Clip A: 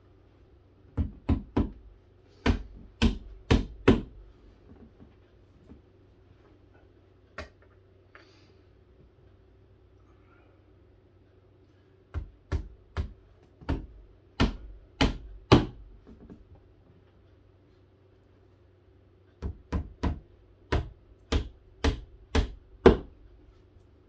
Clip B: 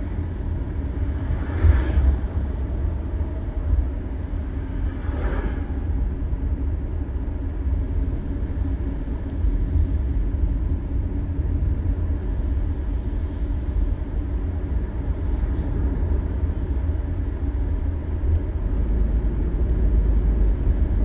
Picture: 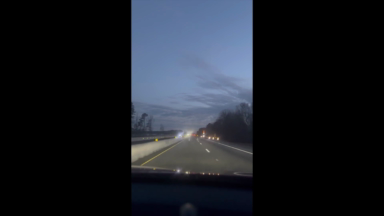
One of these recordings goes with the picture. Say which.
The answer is B